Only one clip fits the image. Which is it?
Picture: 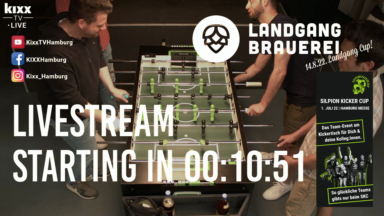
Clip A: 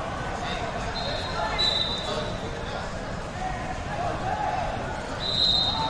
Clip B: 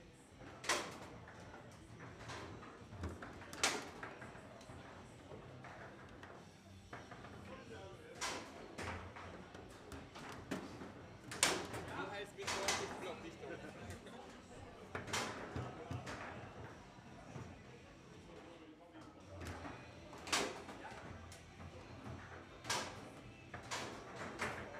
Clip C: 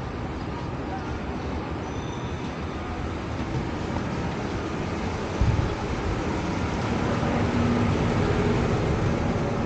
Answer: B